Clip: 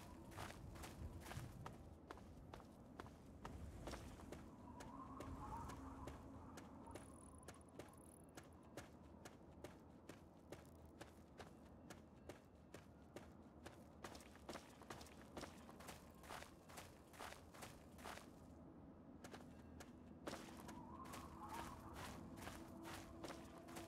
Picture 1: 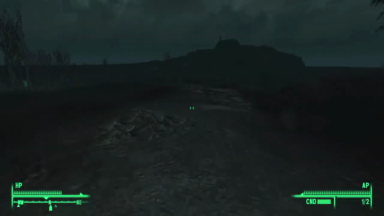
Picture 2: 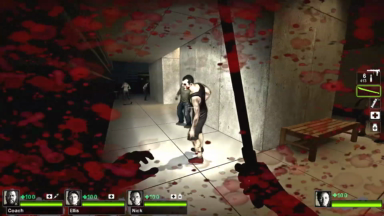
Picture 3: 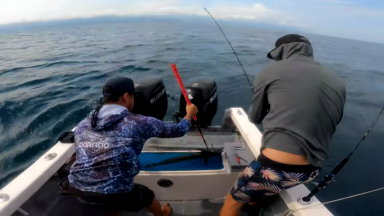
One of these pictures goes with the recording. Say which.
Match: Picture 1